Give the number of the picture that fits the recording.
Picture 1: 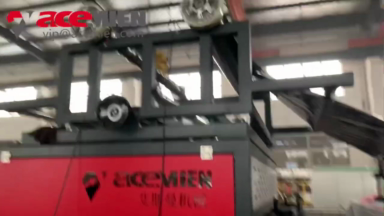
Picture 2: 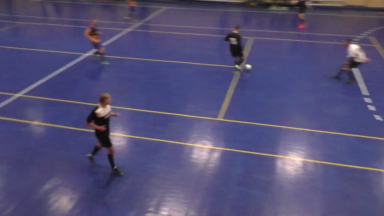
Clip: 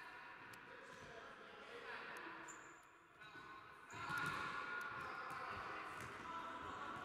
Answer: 2